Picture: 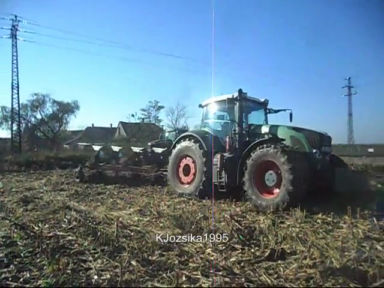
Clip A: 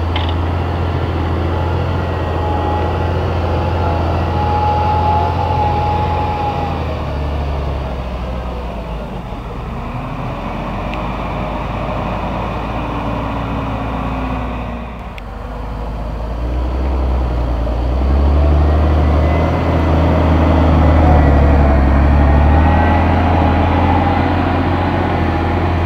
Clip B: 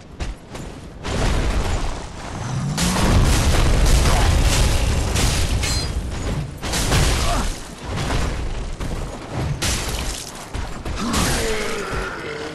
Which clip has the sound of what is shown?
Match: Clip A